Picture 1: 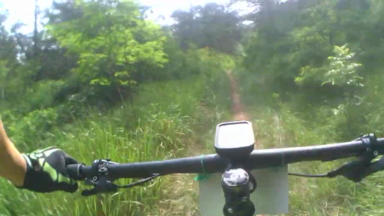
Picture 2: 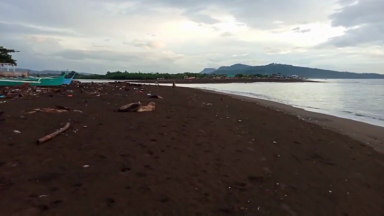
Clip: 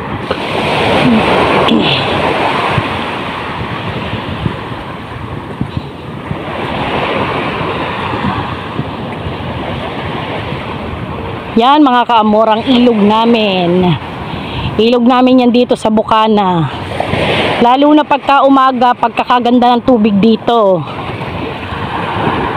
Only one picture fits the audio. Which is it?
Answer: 2